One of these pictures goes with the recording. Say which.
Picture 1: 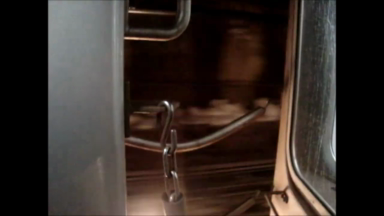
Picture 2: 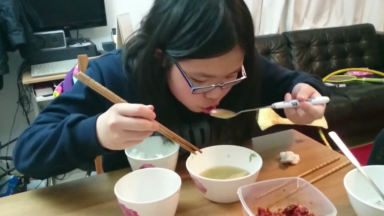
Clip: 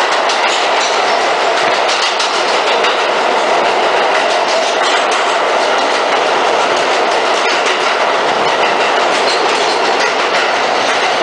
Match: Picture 1